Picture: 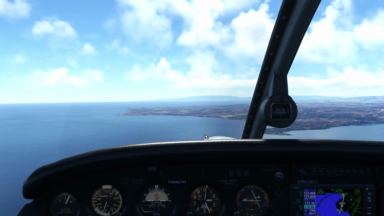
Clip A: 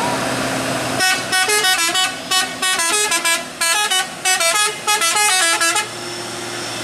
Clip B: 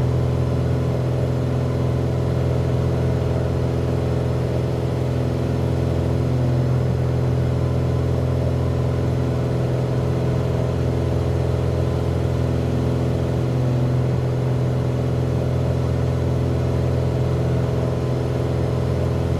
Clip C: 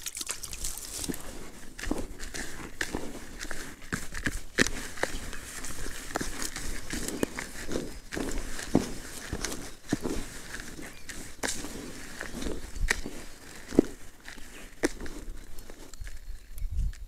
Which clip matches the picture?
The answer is B